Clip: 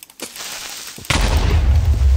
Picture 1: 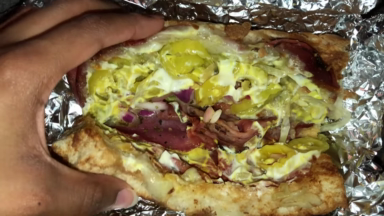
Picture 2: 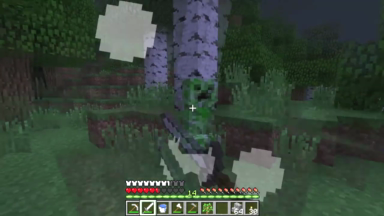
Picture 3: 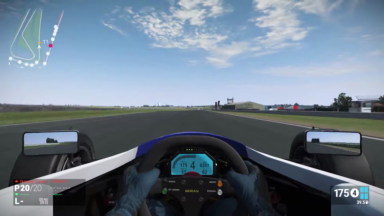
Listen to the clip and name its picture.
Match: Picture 2